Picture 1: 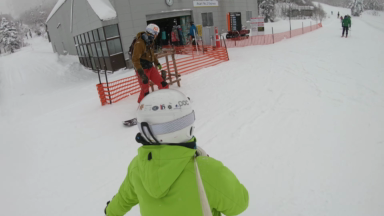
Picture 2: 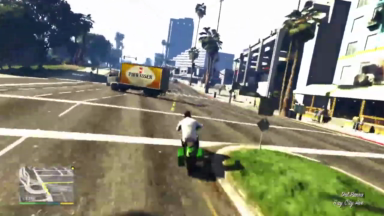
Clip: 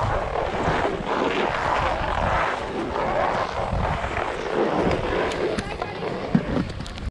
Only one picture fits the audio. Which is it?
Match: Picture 1